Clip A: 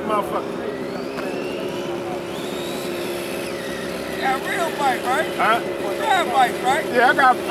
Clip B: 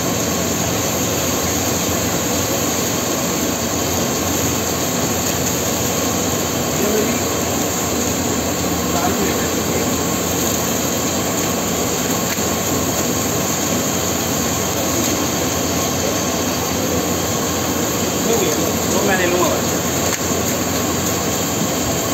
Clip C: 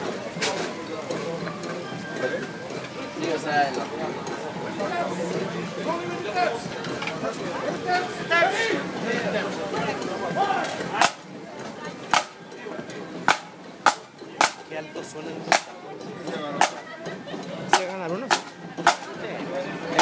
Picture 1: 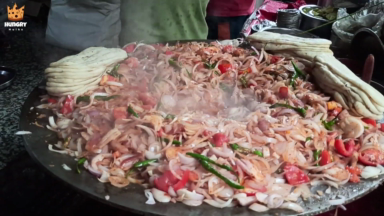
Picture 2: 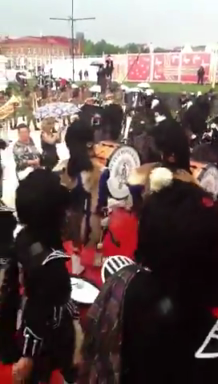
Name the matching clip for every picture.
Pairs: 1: B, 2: C